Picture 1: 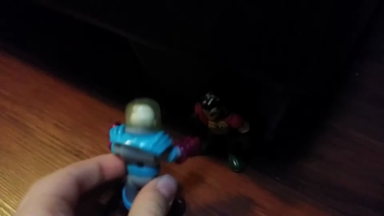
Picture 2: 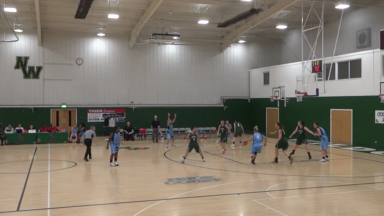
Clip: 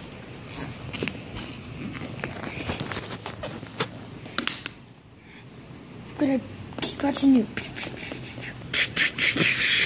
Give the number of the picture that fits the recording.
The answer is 1